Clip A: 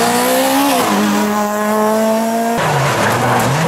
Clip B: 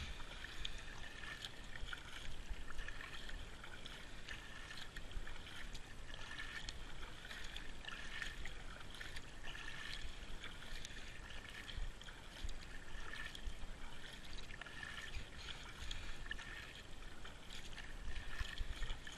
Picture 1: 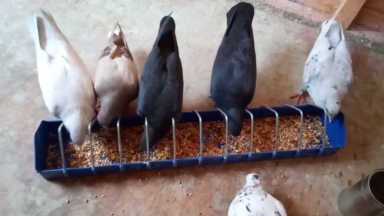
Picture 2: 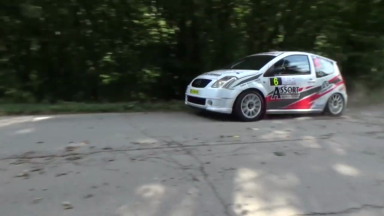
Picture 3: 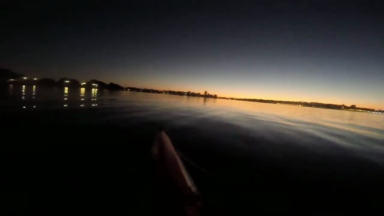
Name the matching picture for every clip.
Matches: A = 2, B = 3